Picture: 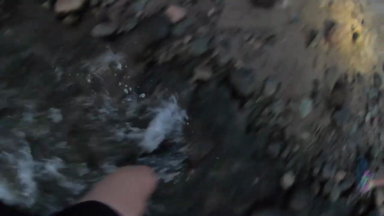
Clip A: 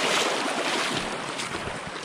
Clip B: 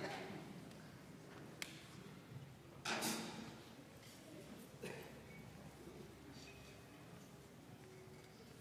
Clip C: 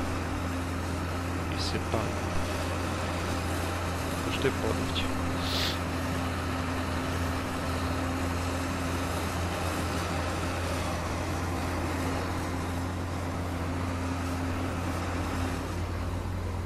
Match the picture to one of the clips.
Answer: A